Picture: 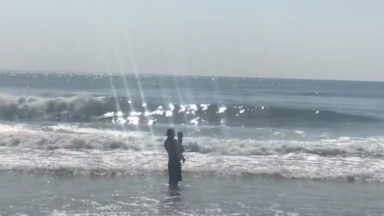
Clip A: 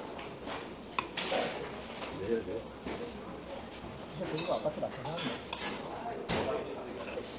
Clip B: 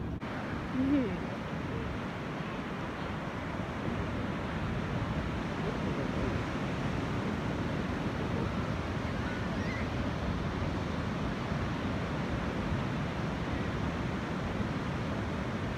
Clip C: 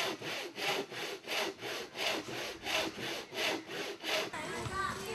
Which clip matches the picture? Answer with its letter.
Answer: B